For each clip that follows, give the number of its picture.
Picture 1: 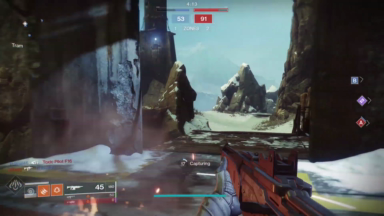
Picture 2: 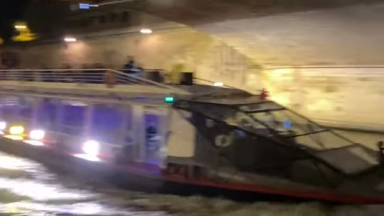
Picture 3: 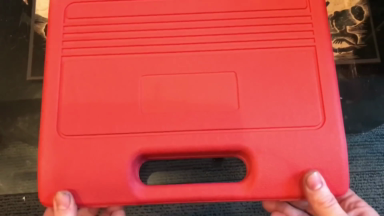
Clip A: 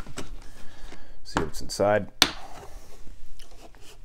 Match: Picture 3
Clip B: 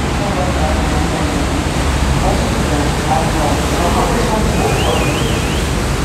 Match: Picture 2